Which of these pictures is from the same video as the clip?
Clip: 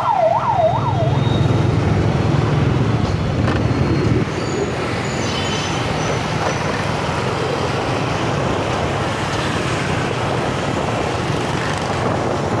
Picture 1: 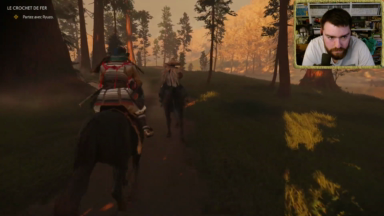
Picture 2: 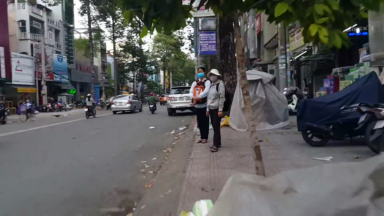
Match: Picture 2